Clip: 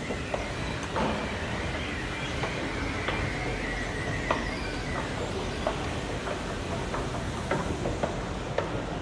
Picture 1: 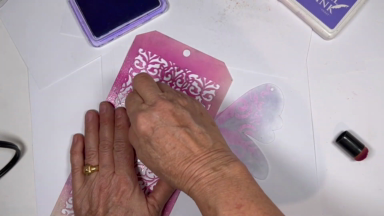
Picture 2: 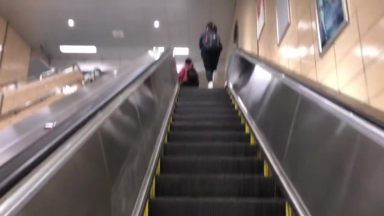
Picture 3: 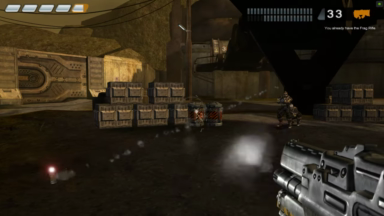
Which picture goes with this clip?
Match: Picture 2